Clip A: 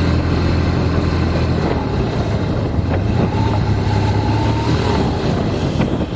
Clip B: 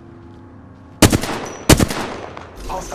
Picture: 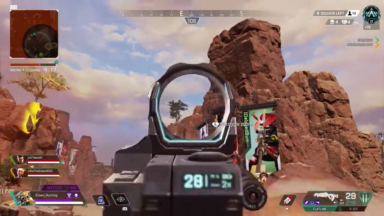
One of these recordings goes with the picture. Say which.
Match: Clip B